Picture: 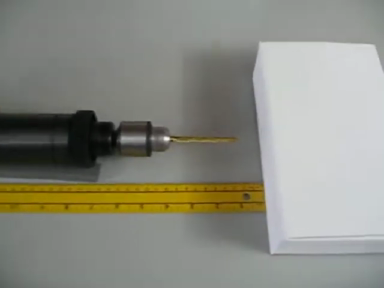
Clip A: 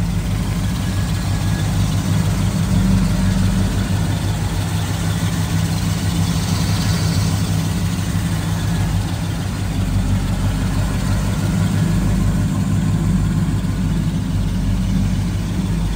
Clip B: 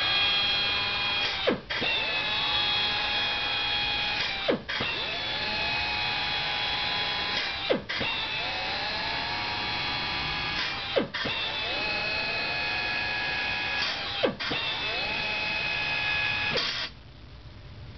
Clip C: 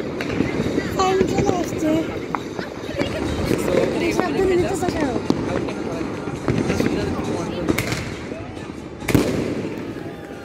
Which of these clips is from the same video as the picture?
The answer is B